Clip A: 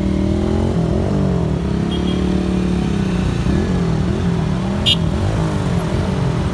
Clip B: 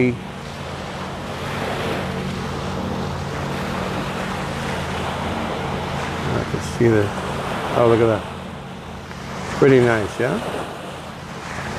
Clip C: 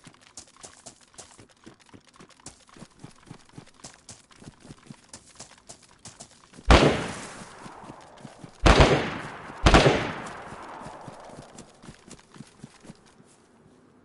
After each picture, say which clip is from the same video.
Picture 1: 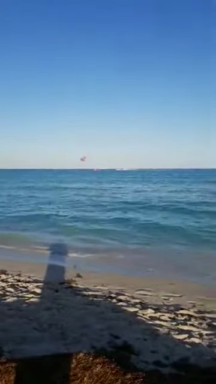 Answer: B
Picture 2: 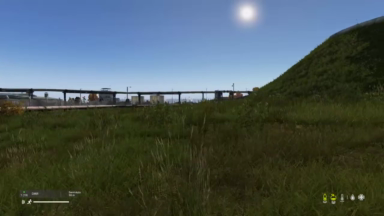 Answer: C